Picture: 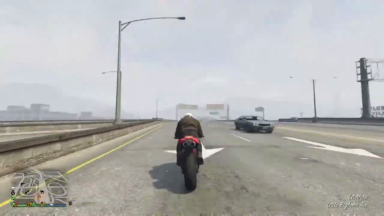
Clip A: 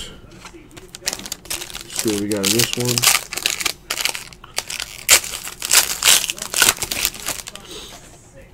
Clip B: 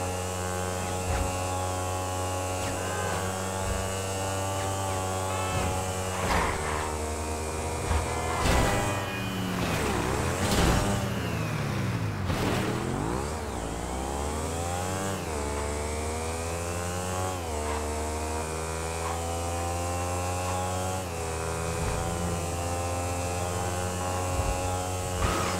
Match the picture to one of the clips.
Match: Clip B